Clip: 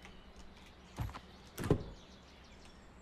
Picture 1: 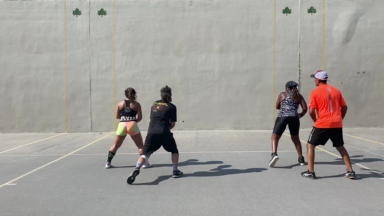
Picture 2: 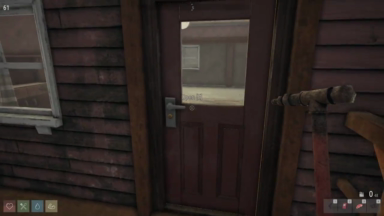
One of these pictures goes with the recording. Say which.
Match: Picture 2